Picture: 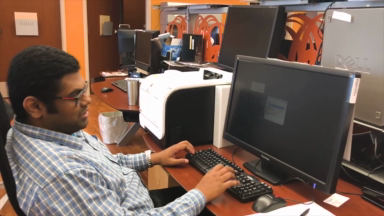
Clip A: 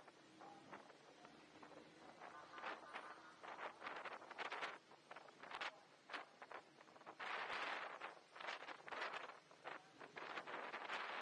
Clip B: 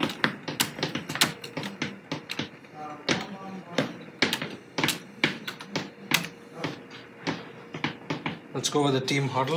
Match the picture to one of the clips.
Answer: B